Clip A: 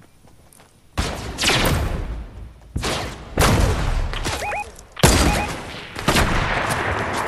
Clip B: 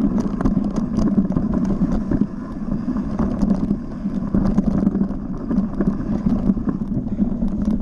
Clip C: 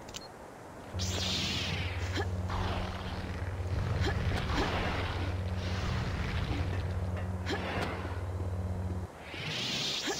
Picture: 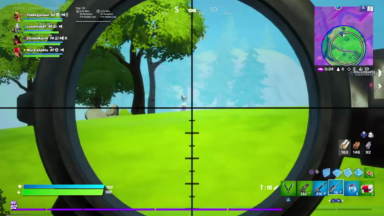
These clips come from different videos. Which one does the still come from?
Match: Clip A